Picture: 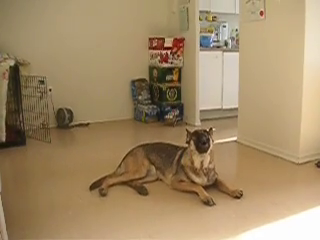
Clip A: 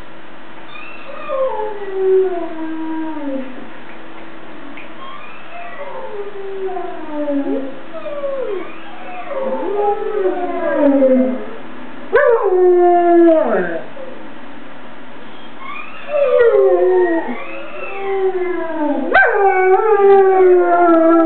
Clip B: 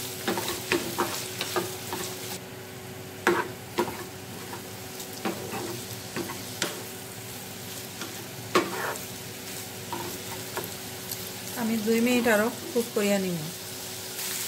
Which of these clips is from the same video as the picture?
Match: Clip A